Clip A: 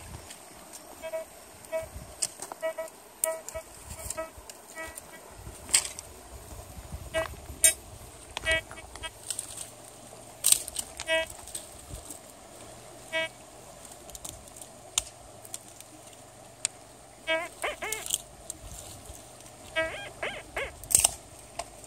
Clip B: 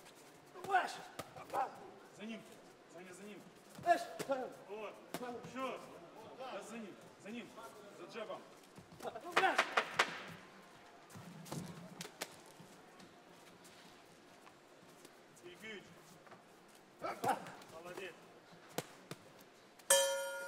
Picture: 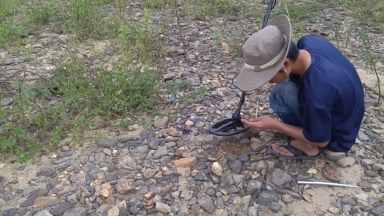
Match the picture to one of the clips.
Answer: A